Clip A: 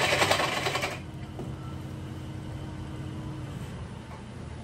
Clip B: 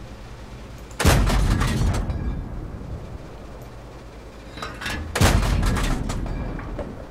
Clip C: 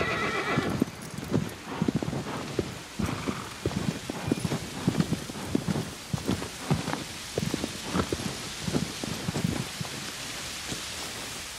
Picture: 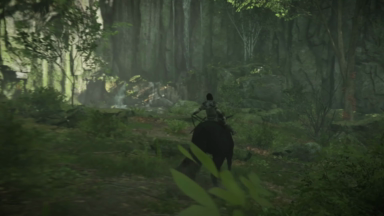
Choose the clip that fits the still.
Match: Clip C